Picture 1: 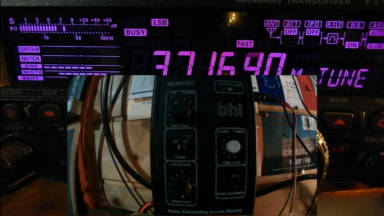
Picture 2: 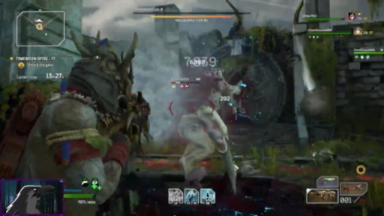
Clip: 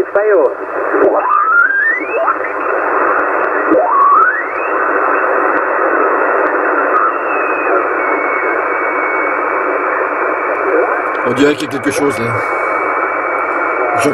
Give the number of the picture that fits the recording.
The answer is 1